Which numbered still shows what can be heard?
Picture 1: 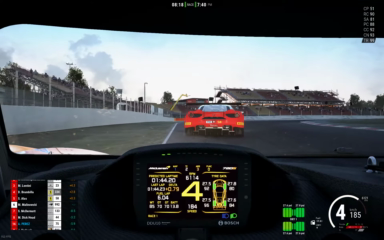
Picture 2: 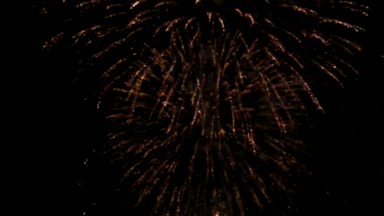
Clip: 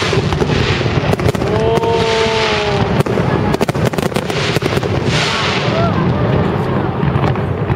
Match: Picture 2